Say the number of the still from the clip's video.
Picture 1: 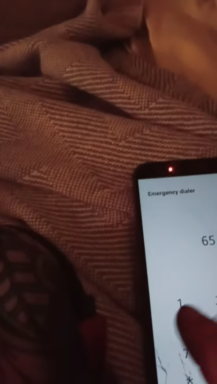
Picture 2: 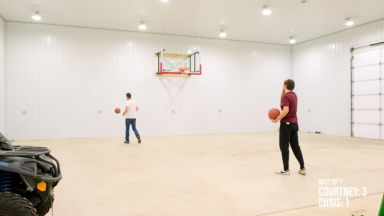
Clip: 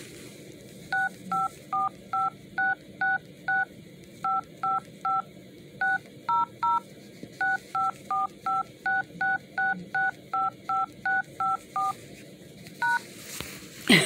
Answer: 1